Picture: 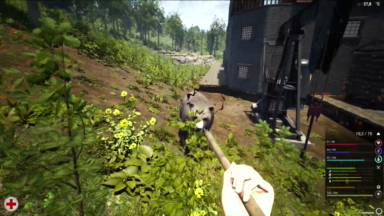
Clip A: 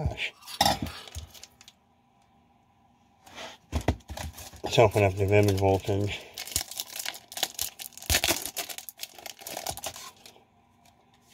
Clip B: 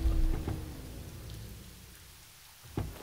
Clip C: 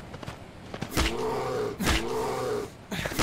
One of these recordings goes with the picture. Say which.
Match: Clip C